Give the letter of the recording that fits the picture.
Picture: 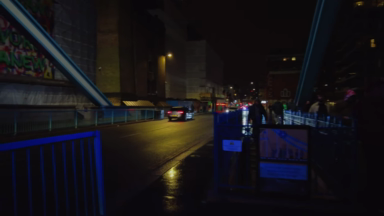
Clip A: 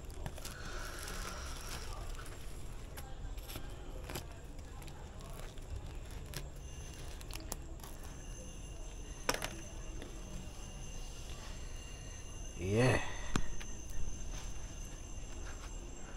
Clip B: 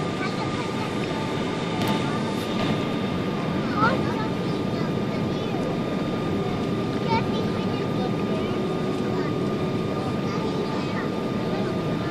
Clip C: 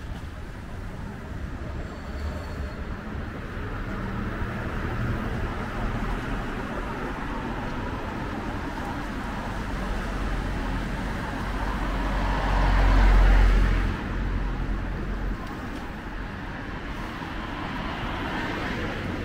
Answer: C